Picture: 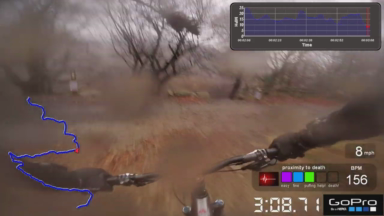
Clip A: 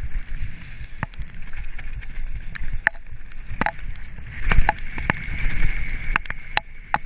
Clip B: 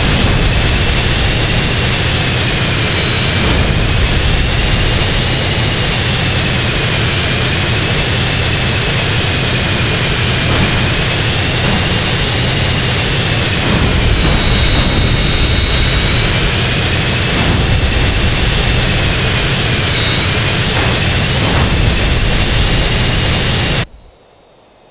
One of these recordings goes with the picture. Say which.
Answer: A